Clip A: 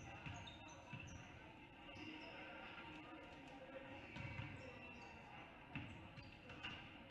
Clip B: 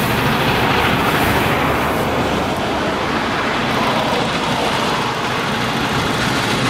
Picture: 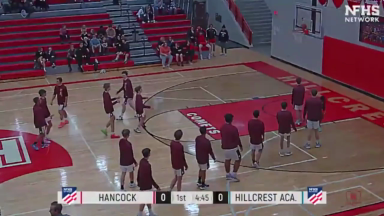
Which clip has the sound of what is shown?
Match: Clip A